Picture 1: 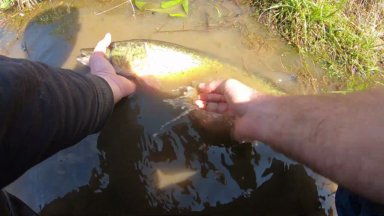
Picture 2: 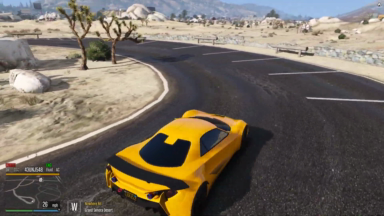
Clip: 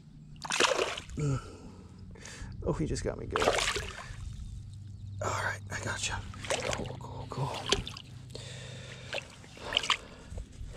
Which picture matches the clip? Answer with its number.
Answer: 1